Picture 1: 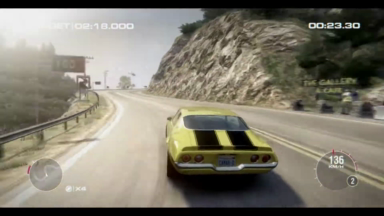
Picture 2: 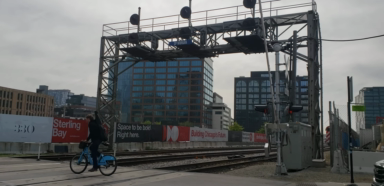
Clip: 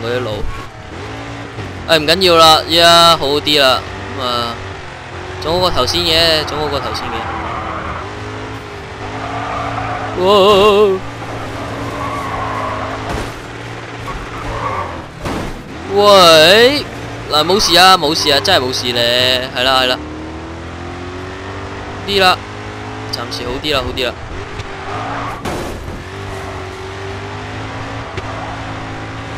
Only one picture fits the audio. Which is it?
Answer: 1